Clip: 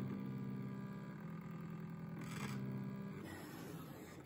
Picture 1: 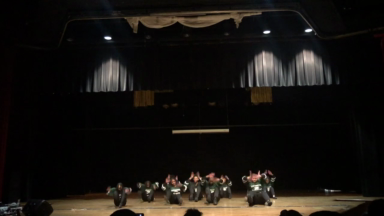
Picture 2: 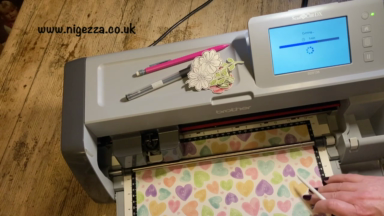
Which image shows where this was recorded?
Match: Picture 2